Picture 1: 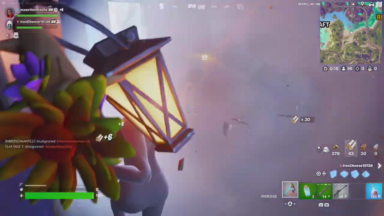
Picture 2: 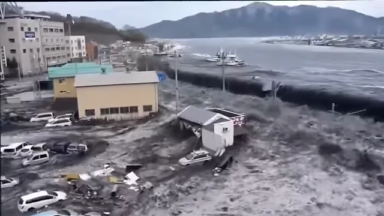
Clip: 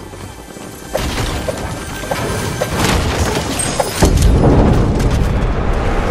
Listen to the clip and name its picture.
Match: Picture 1